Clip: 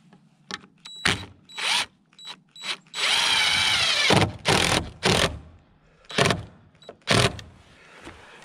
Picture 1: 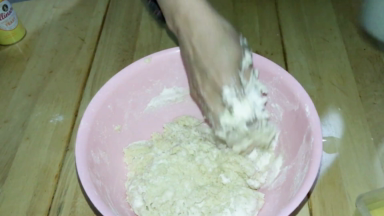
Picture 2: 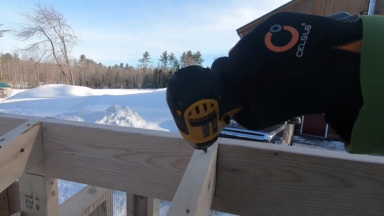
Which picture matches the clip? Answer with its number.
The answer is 2